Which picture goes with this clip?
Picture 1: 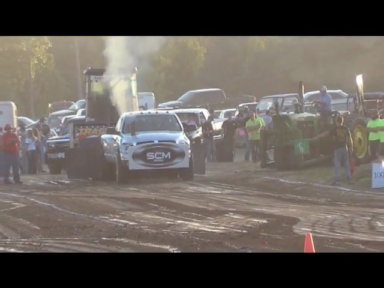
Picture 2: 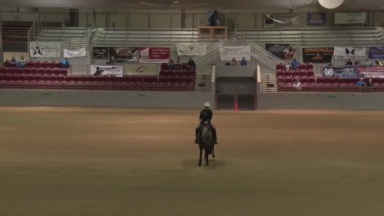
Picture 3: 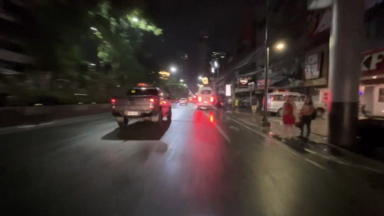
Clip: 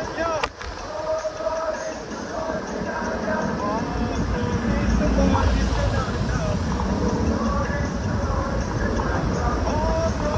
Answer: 3